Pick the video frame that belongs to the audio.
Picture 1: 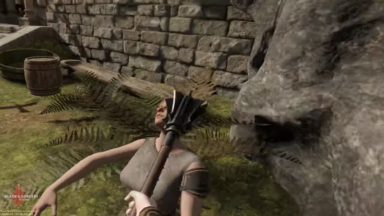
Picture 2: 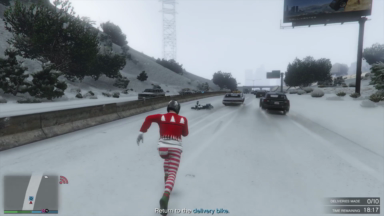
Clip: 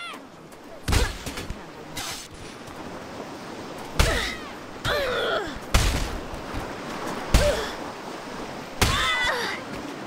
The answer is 1